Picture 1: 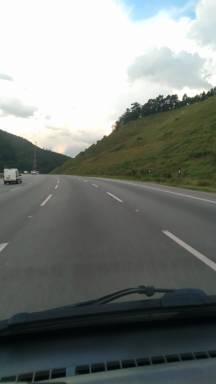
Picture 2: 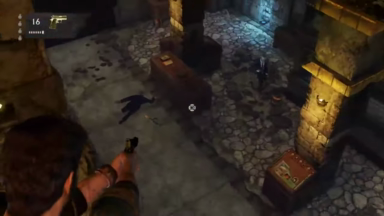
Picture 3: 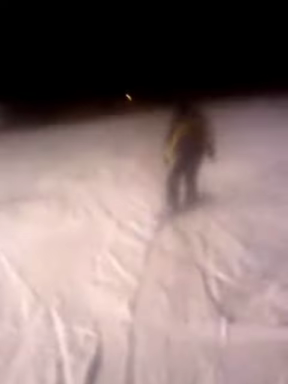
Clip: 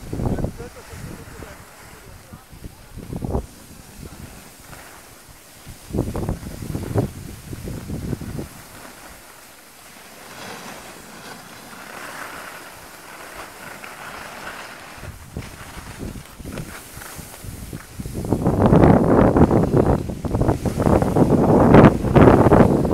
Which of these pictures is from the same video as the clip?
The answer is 3